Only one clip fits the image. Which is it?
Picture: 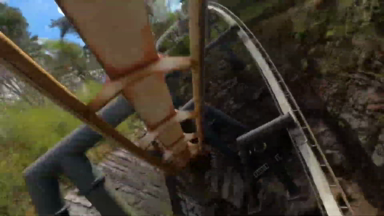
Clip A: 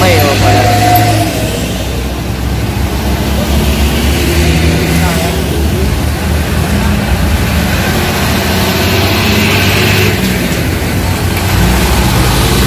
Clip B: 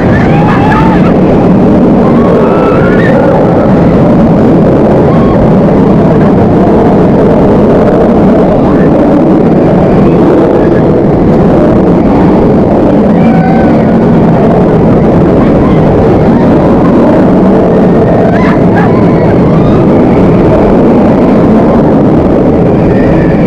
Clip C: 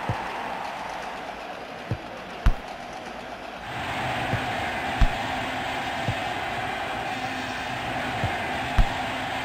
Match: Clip B